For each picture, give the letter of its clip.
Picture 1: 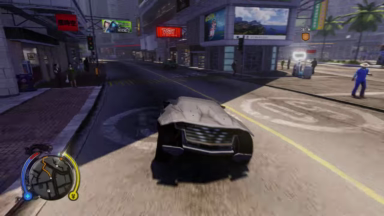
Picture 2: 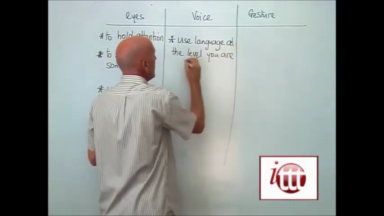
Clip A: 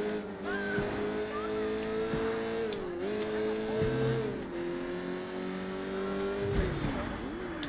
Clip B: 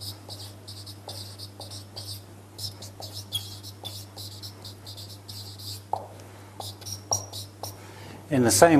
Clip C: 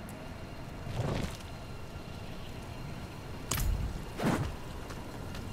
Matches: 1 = A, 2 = B